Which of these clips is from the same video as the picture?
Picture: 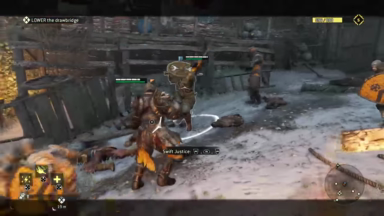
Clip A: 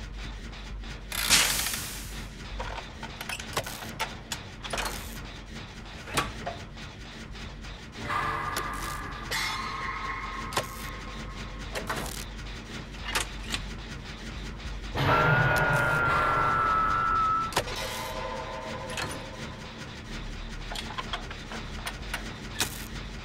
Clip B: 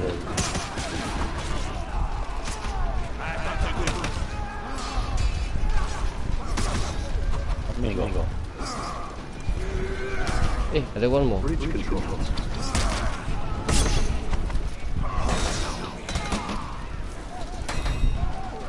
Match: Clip B